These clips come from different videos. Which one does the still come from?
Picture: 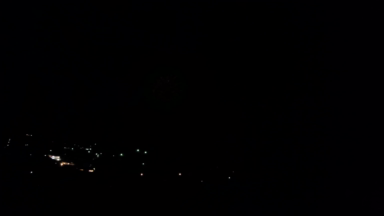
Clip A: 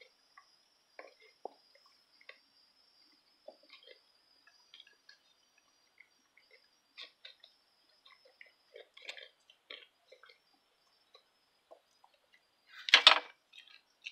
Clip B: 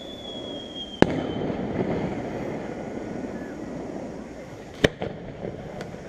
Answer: B